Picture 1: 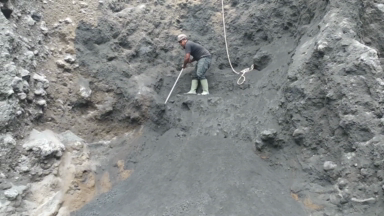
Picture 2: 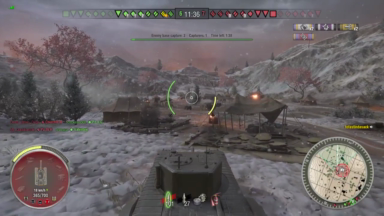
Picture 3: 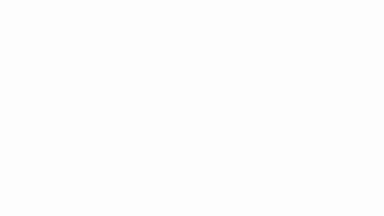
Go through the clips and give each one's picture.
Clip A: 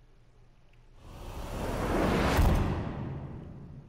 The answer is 3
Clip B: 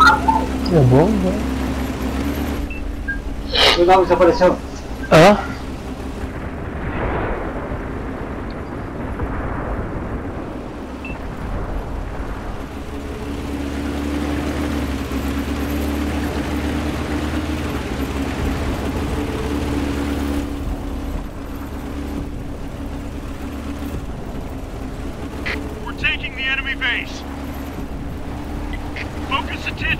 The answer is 2